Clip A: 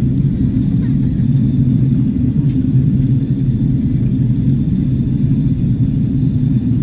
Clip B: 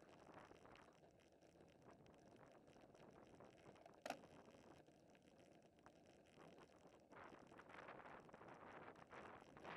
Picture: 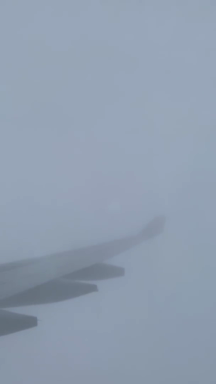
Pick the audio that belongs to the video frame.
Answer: A